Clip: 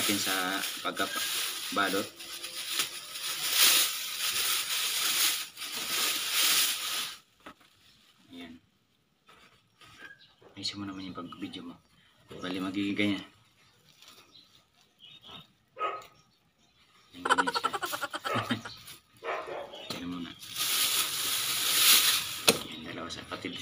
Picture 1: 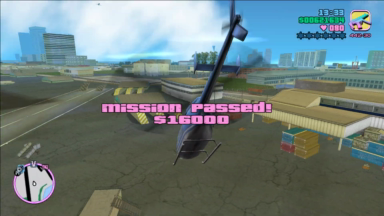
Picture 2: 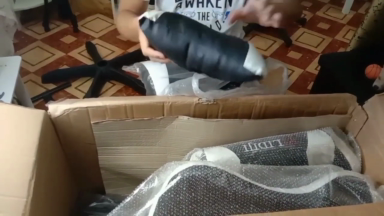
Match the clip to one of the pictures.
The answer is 2